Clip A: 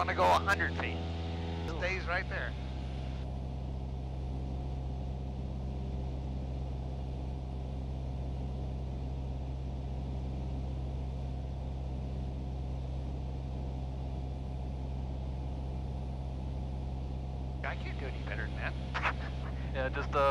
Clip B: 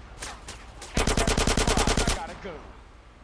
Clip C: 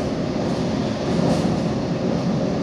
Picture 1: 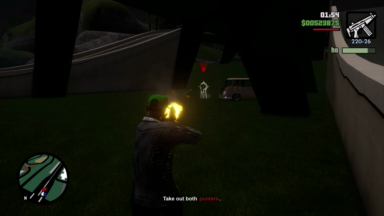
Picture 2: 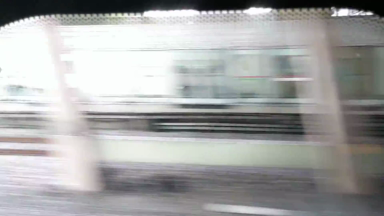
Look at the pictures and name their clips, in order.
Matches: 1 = B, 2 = C